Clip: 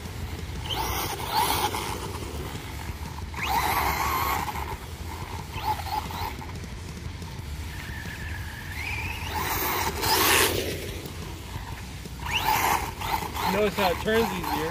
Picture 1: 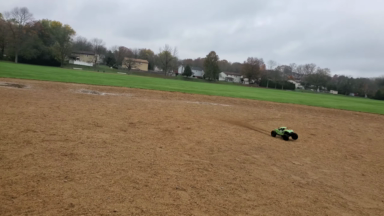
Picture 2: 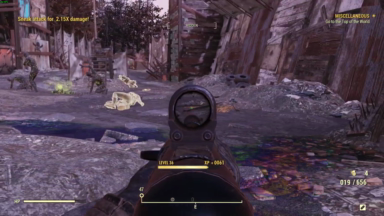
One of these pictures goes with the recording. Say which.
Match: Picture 1